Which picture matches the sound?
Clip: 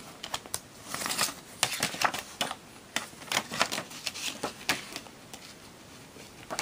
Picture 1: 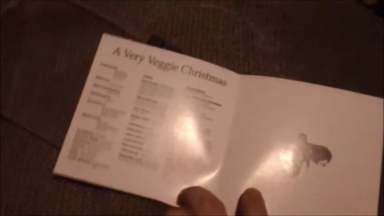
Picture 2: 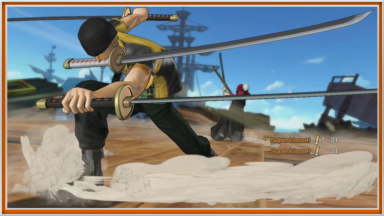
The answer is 1